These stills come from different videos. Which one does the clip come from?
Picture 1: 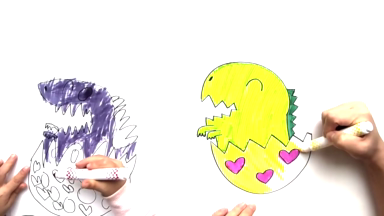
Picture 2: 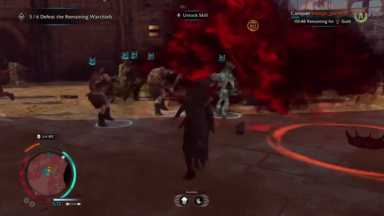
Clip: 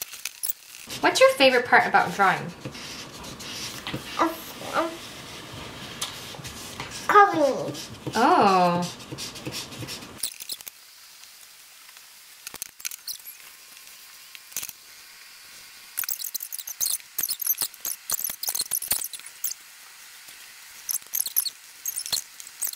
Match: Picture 1